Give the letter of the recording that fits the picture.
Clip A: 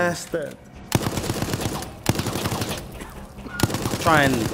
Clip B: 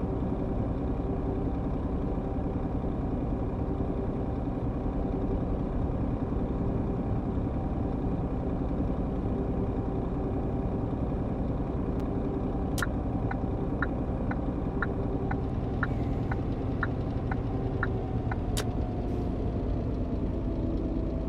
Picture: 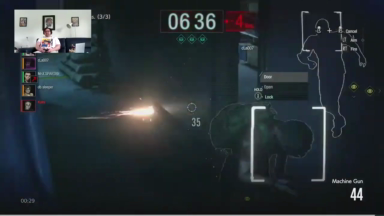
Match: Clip A